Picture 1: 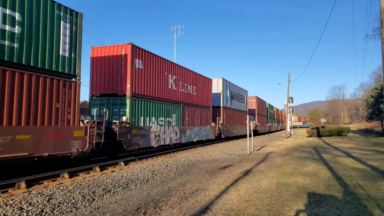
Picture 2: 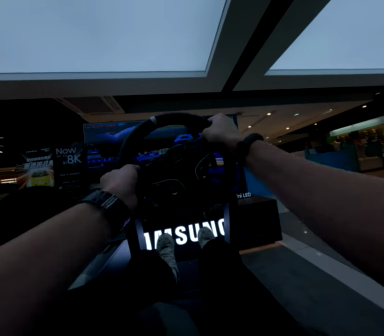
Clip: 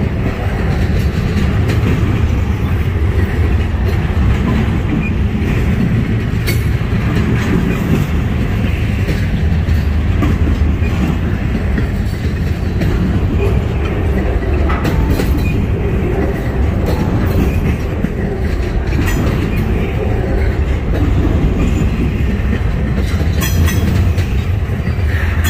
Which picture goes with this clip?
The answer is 1